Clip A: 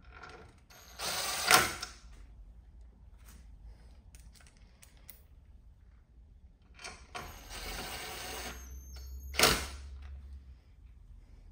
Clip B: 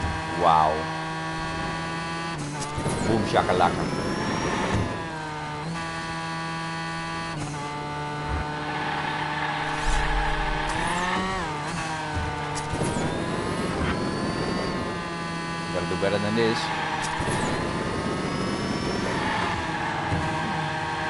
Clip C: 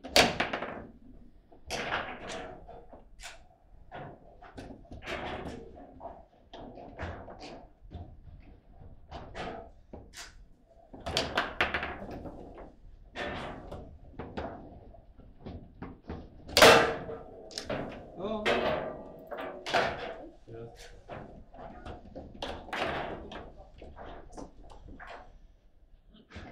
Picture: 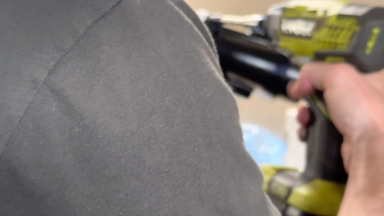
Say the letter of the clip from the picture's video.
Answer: A